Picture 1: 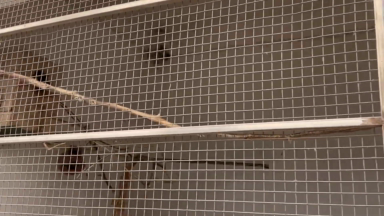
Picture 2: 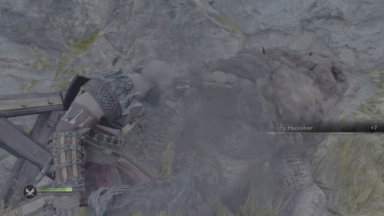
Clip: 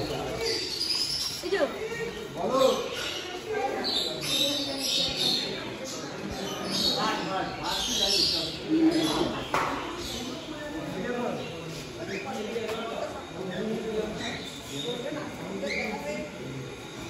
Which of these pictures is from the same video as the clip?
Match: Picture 1